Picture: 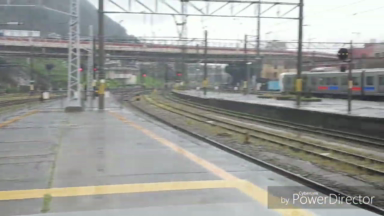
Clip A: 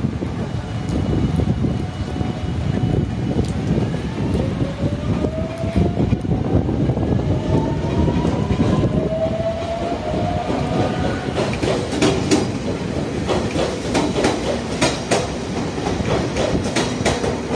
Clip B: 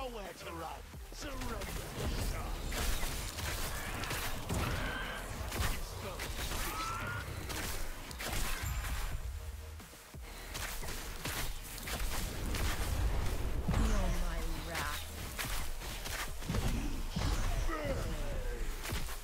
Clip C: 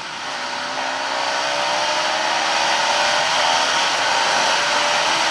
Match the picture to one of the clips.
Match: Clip A